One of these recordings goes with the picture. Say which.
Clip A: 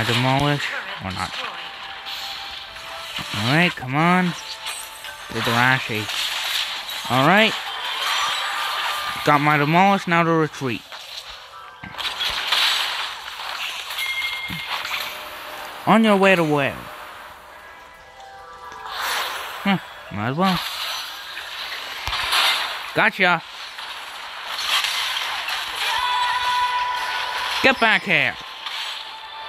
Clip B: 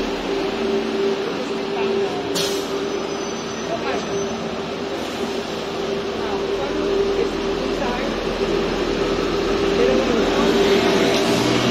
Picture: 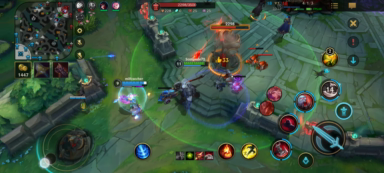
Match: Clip A